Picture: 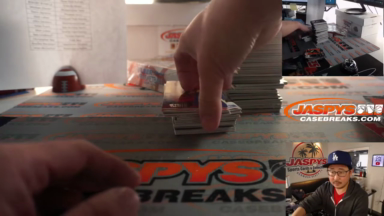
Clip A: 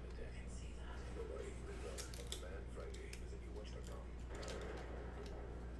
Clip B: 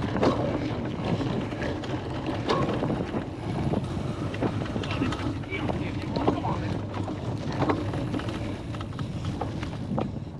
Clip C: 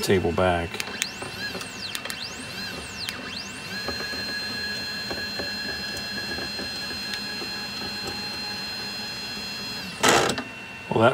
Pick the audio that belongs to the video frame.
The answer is A